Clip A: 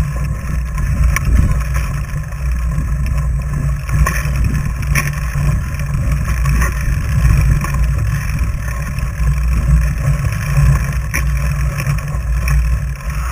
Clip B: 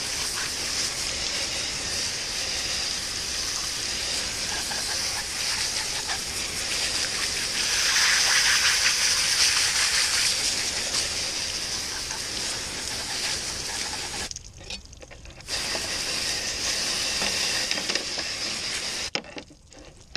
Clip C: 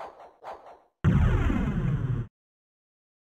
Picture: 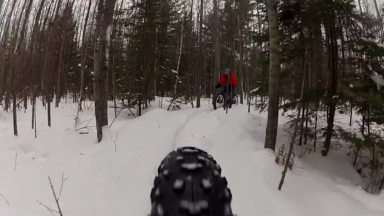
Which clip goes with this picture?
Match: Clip A